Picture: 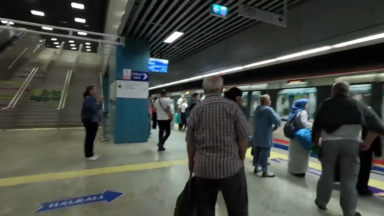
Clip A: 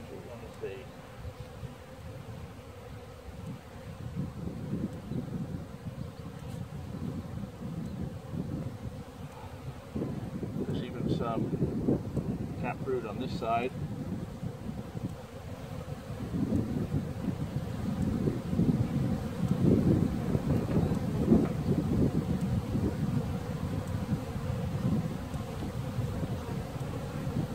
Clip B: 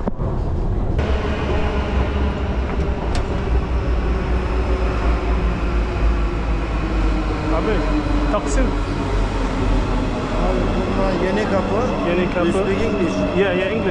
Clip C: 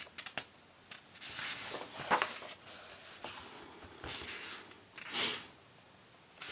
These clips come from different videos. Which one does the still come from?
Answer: B